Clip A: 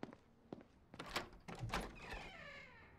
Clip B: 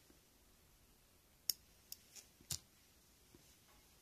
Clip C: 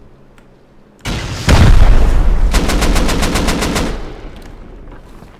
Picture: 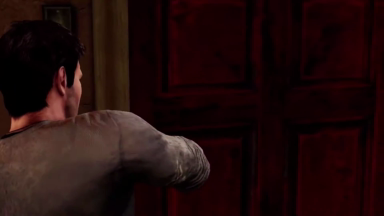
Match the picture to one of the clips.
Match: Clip A